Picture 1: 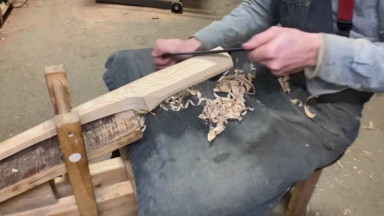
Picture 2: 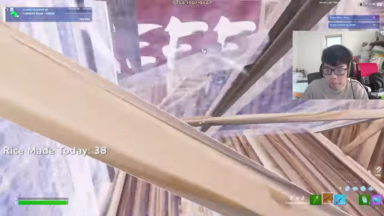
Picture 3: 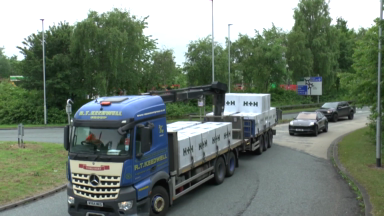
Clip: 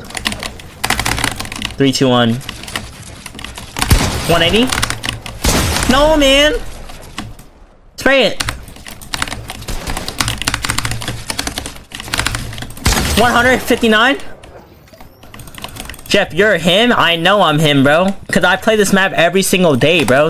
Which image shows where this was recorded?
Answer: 2